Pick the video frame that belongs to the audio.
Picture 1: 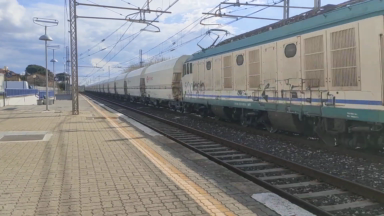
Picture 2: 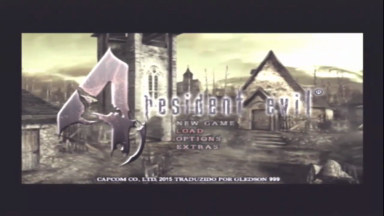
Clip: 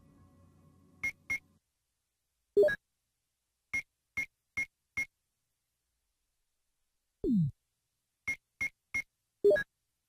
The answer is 2